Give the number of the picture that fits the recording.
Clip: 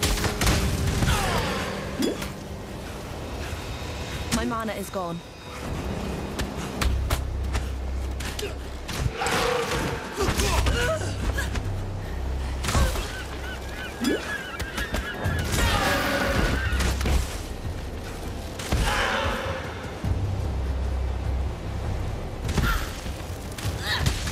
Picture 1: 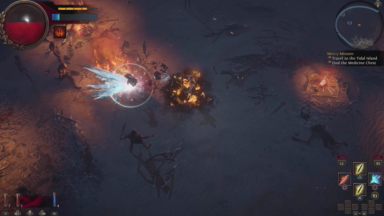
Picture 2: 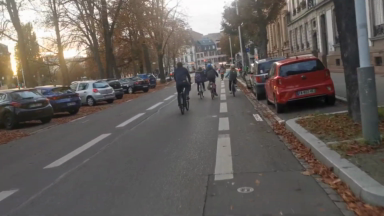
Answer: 1